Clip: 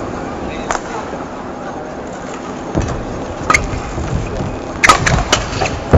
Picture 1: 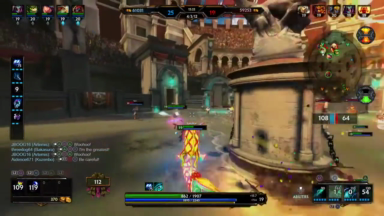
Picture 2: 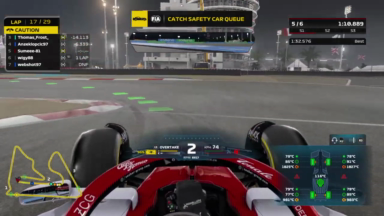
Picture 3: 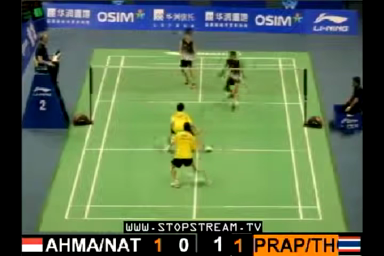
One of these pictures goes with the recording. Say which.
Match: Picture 3